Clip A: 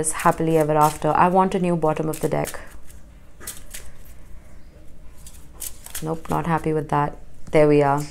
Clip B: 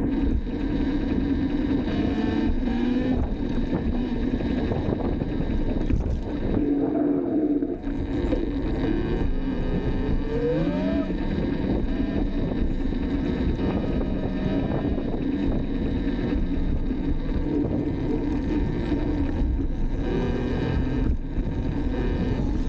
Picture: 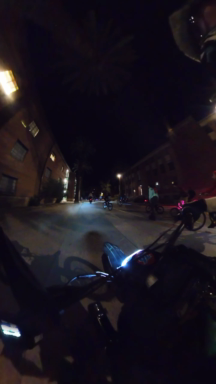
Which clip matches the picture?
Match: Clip B